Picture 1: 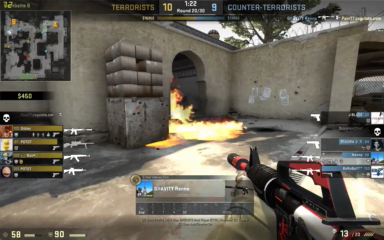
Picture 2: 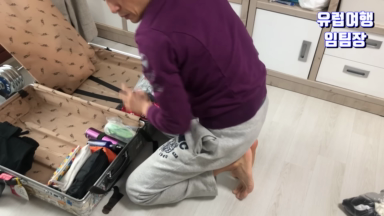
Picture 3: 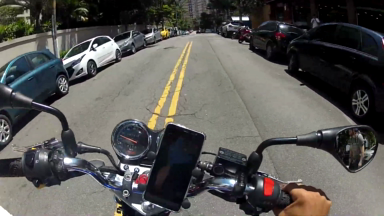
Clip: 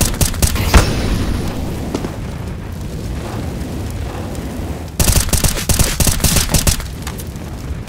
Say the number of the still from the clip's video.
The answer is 1